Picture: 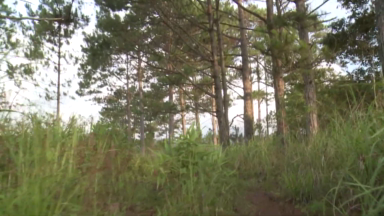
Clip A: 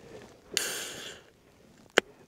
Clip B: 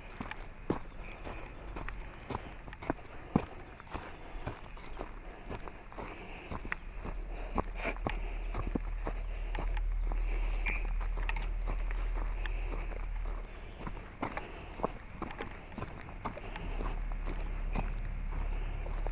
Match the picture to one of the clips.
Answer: B